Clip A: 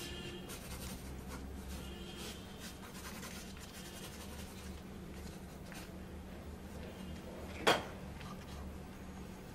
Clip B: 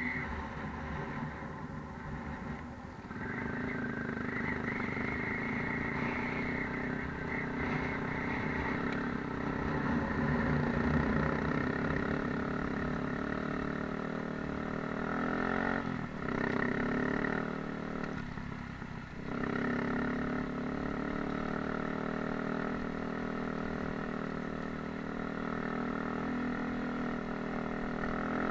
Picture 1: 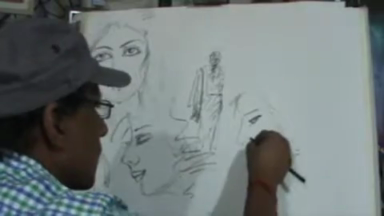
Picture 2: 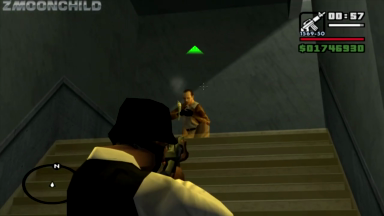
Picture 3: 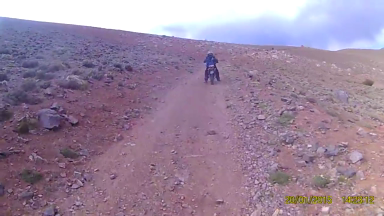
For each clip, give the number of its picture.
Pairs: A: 1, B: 3